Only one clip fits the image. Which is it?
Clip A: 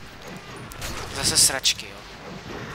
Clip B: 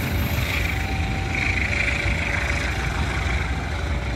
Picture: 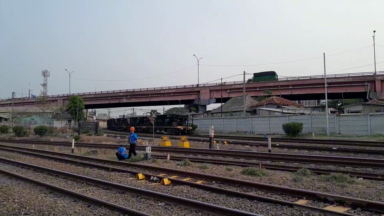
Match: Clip B